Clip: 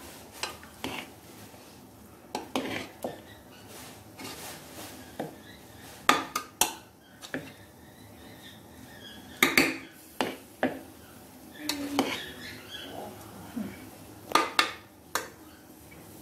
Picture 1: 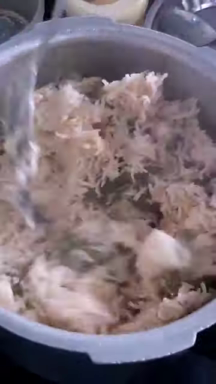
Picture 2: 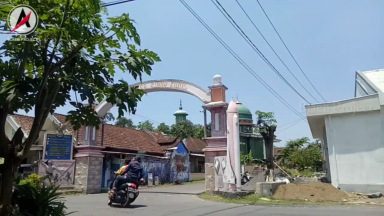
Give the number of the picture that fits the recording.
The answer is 1